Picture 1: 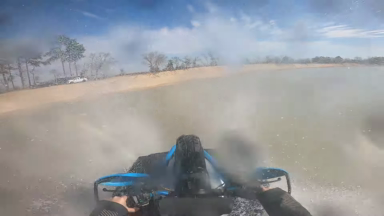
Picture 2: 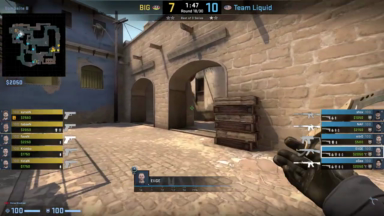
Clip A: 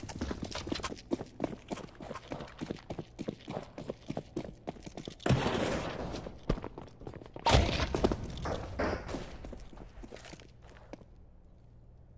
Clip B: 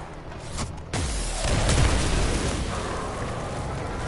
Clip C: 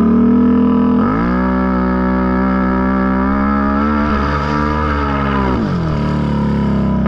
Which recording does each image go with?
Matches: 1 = C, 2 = A